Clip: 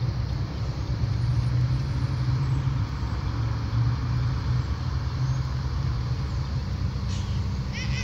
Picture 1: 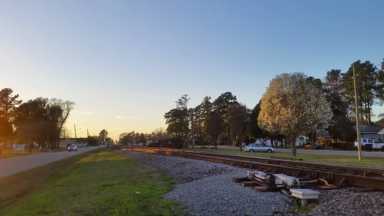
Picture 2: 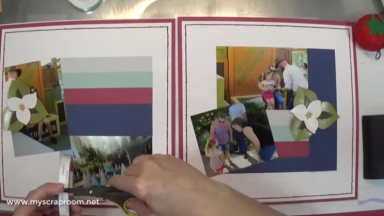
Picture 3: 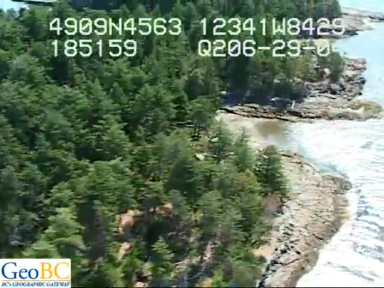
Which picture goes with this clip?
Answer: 1